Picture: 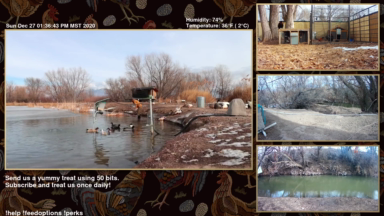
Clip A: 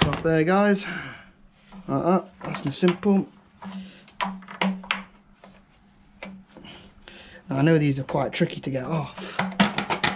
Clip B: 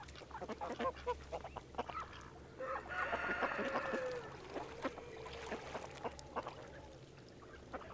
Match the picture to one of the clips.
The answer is B